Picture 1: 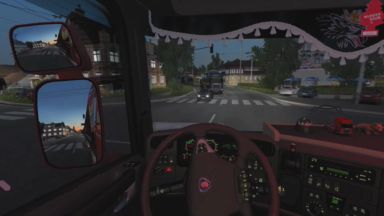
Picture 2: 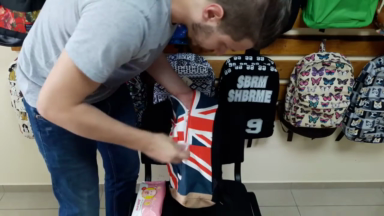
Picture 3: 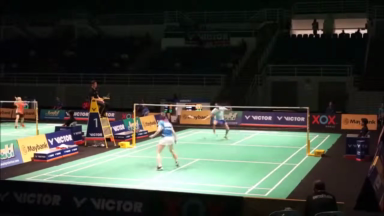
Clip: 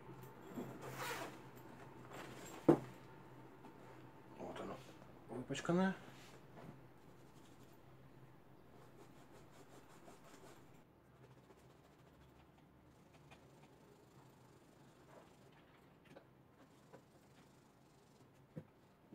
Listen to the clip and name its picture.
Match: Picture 2